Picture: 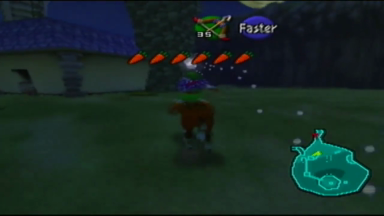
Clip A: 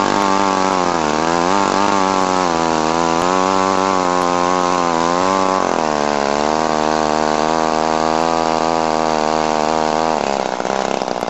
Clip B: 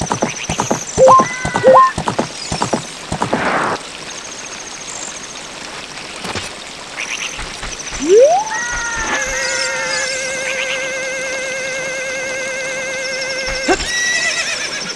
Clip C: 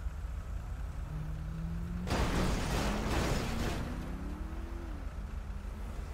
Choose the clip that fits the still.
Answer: B